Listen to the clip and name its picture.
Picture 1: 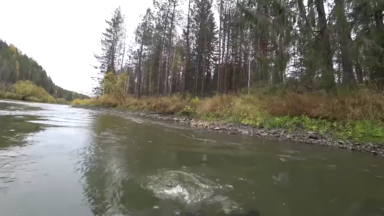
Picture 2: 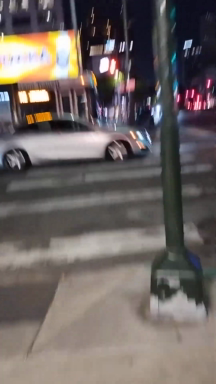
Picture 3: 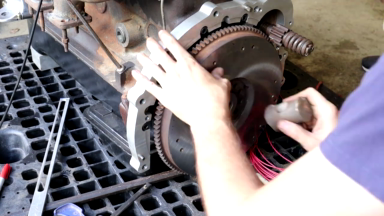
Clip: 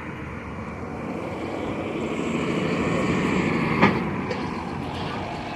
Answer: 2